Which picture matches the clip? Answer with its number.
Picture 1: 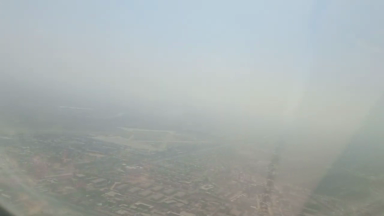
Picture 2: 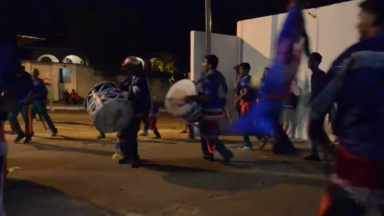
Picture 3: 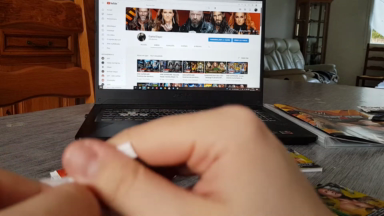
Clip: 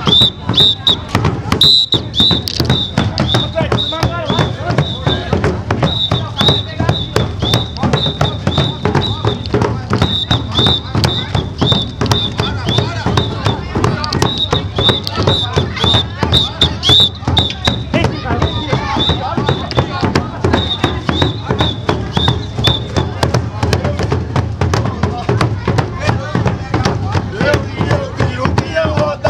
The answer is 2